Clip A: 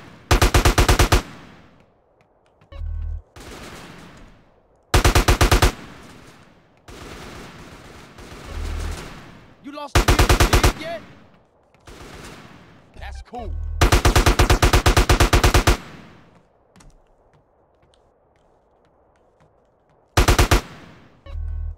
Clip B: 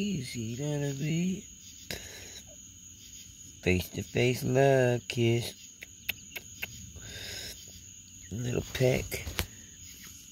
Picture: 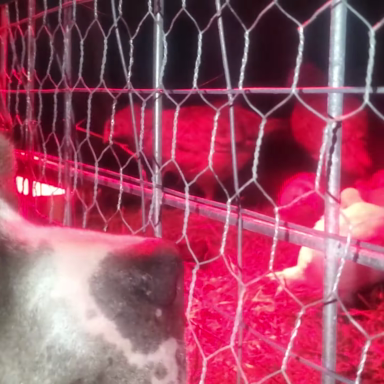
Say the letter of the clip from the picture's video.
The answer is B